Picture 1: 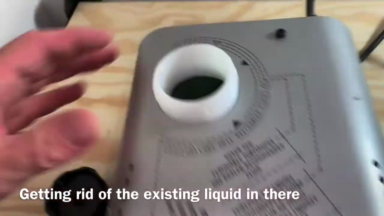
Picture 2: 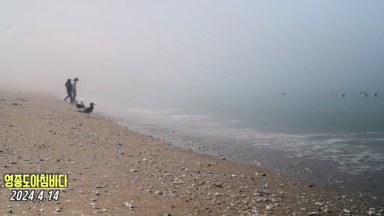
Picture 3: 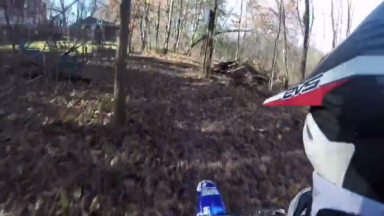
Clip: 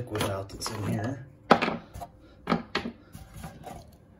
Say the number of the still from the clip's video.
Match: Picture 1